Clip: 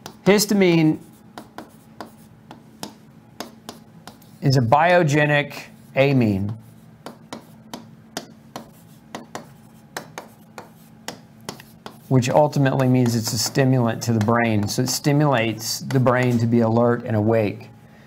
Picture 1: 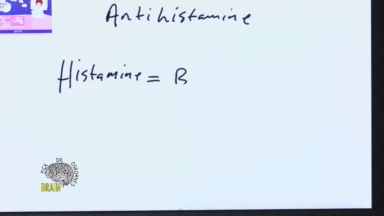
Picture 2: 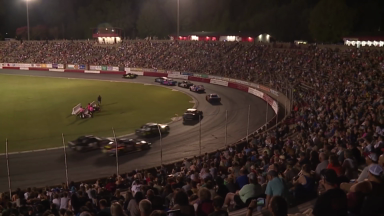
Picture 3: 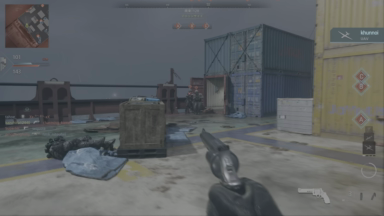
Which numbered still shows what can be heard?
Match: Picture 1